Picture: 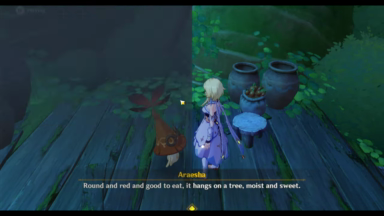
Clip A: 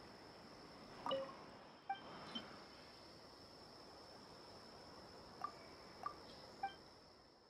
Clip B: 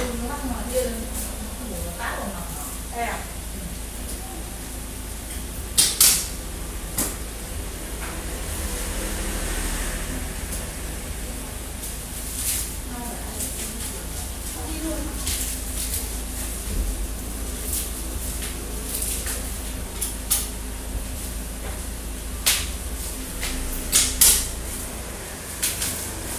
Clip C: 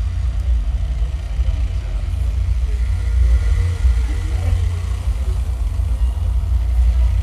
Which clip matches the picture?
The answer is A